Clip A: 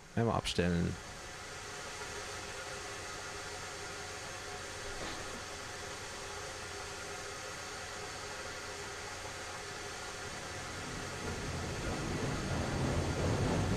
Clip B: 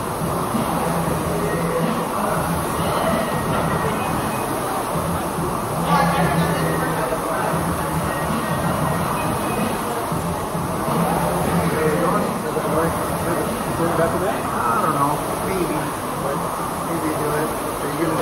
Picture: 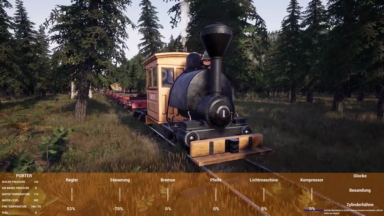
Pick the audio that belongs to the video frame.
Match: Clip A